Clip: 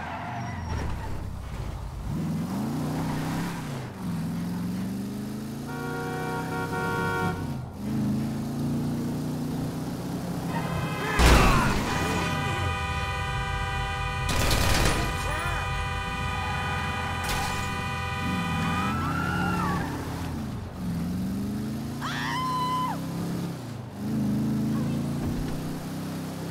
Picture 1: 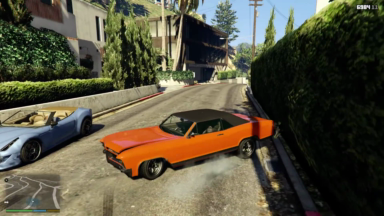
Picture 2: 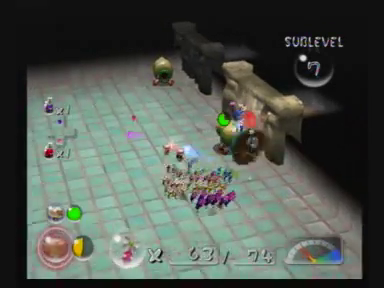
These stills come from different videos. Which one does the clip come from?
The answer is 1